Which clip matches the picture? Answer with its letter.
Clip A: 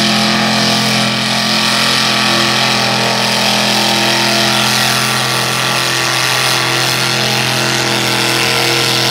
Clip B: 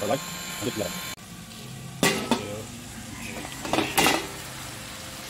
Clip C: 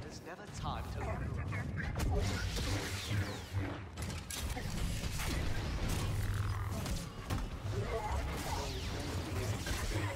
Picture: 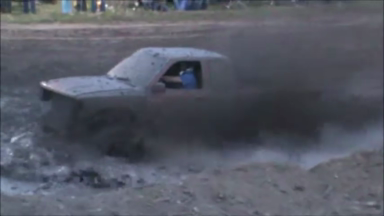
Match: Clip A